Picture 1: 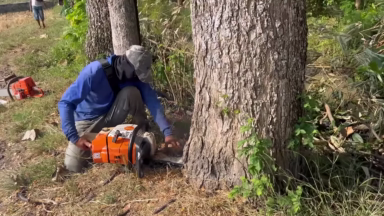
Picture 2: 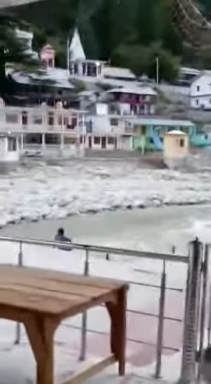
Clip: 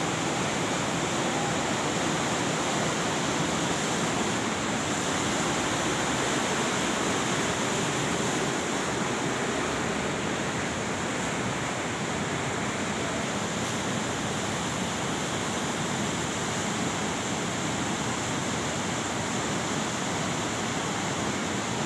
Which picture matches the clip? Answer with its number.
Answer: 2